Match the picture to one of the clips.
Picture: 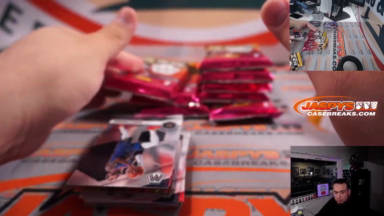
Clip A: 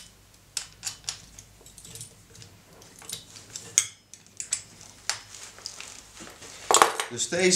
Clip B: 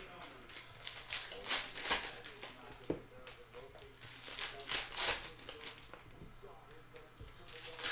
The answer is B